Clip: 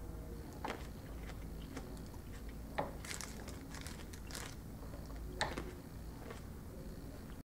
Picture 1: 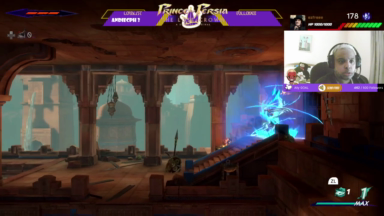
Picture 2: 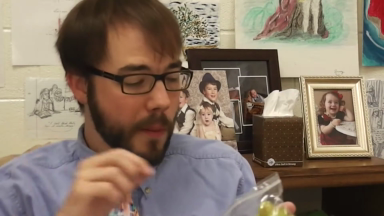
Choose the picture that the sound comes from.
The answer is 2